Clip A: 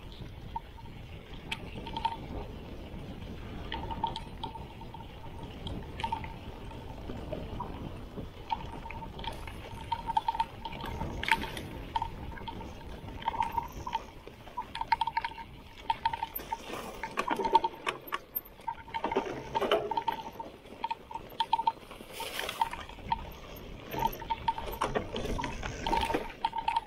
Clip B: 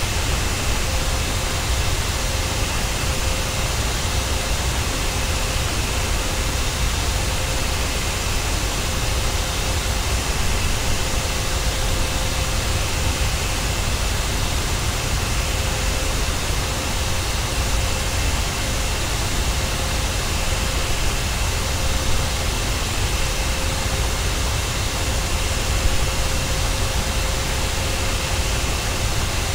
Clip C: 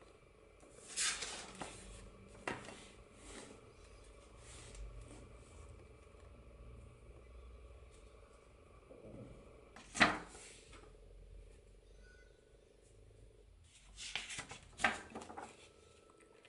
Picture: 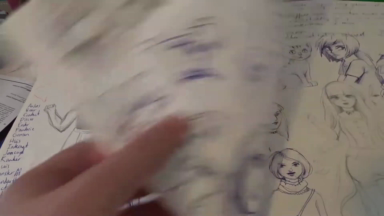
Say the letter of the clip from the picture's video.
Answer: C